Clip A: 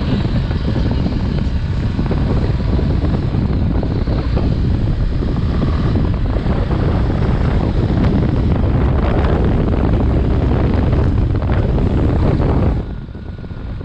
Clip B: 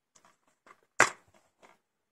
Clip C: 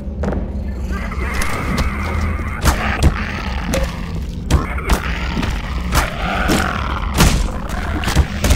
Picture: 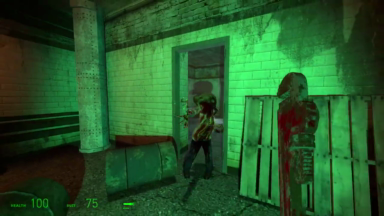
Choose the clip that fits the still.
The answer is C